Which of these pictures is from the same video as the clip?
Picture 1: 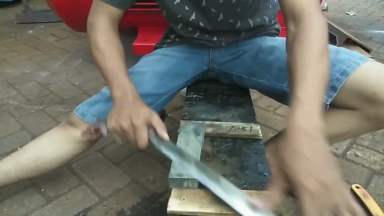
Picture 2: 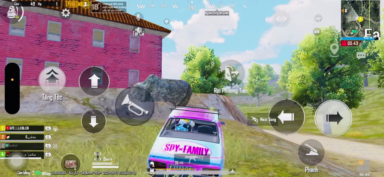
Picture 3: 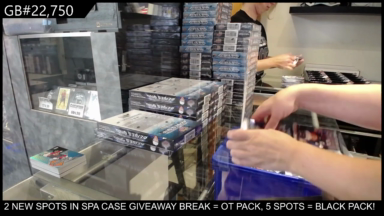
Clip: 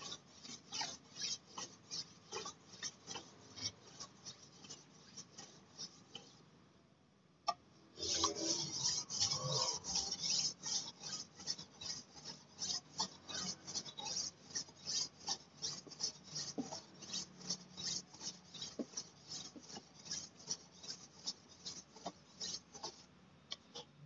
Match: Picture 1